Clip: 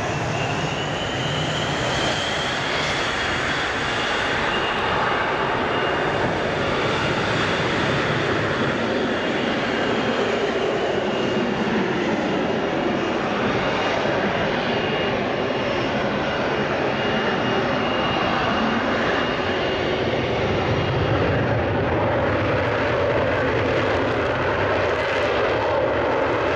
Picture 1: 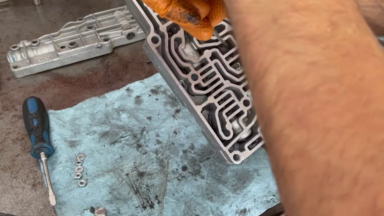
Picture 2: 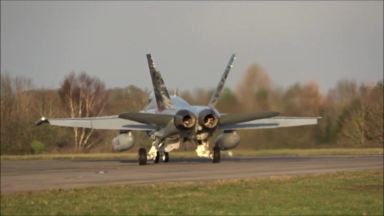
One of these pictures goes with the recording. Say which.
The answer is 2